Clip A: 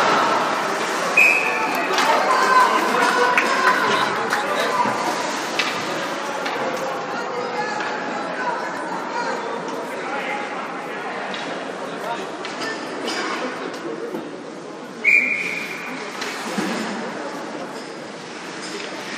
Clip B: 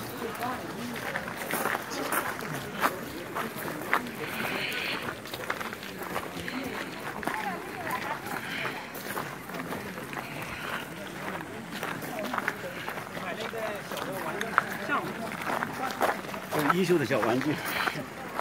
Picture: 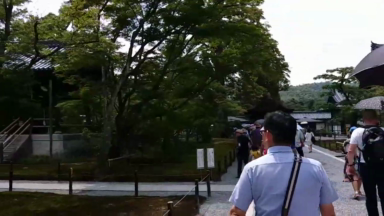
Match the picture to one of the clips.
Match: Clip B